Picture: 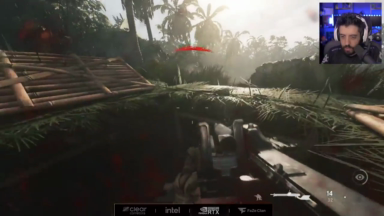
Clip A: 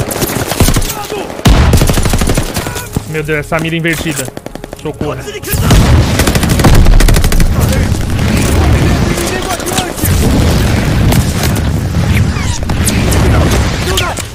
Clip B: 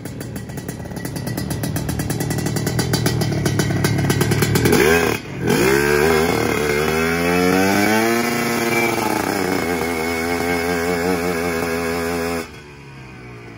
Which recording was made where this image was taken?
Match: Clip A